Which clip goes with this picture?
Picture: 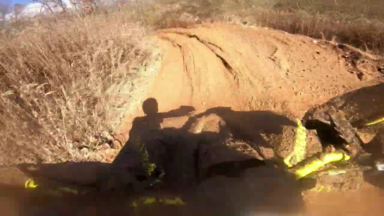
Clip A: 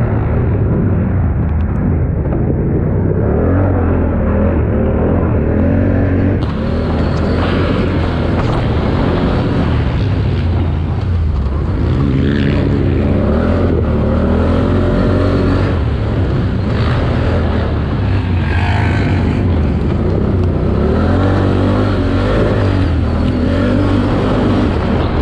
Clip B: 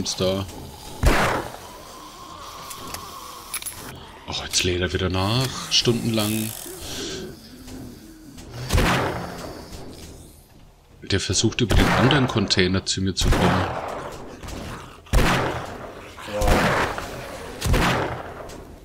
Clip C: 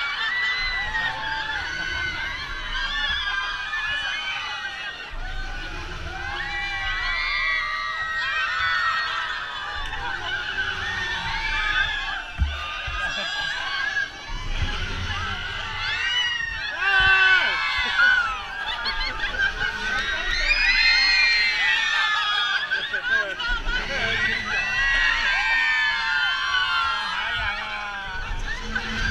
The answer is A